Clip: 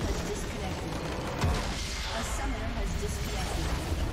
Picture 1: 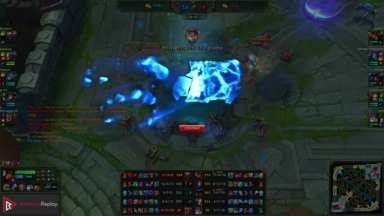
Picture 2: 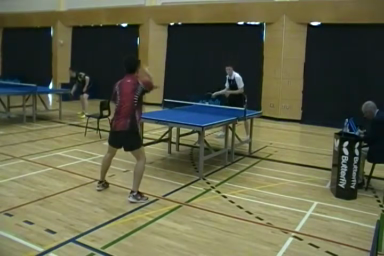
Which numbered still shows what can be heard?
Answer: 1